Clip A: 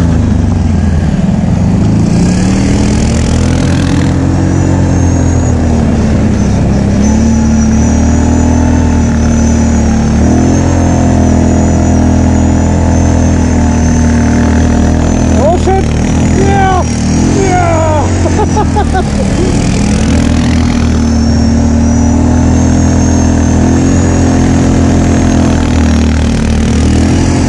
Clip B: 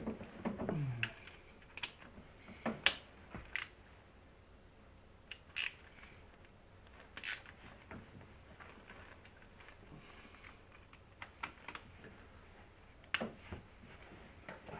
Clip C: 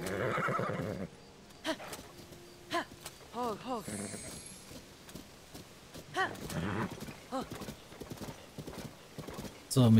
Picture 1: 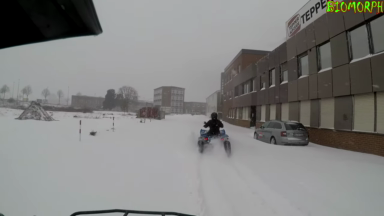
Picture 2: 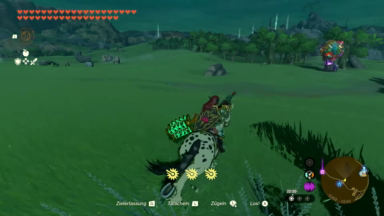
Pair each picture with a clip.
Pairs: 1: A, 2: C